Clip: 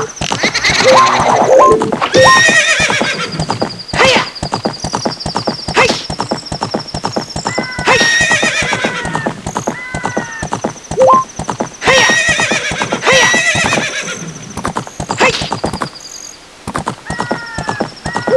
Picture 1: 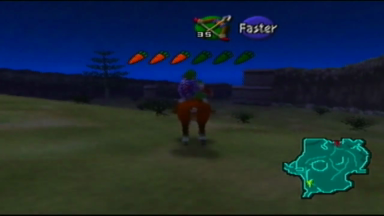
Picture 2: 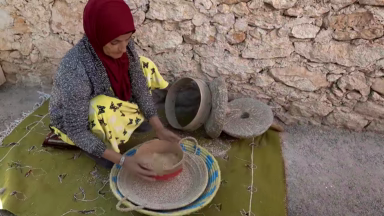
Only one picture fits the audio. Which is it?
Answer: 1